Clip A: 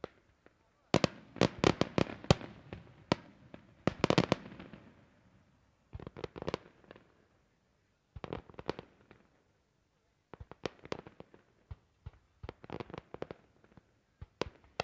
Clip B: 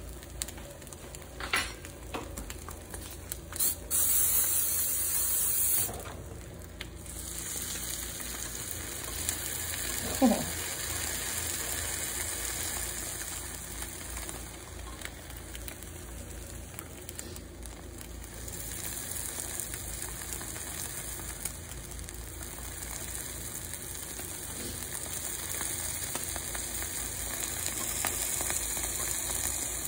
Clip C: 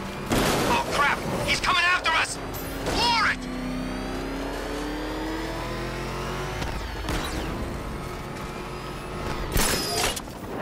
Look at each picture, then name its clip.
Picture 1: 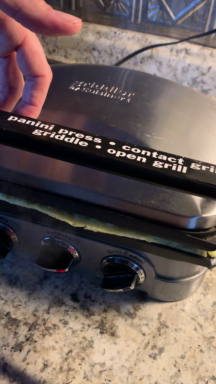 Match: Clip B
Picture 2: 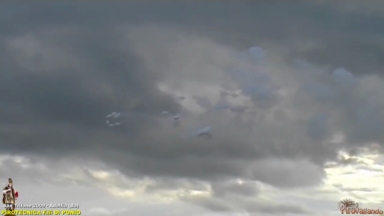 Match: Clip A